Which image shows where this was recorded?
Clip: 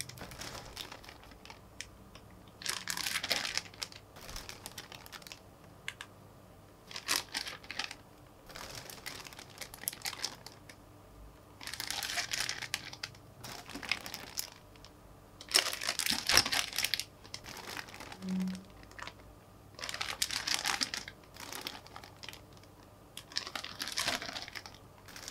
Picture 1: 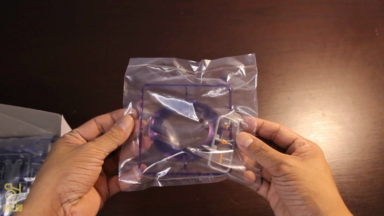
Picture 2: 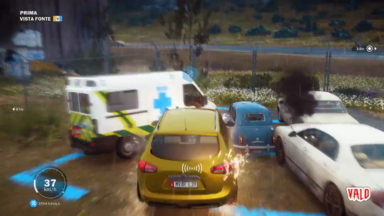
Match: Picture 1